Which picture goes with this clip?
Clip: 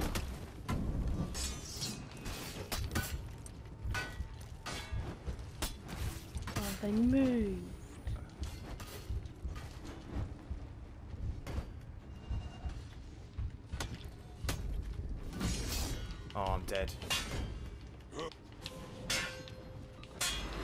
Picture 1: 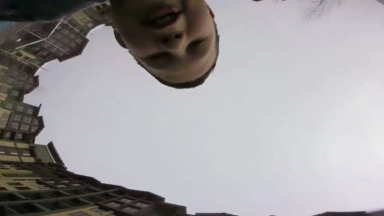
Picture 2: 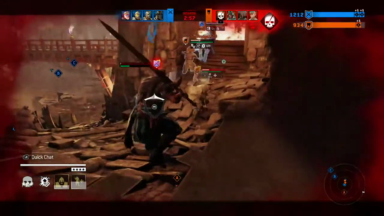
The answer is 2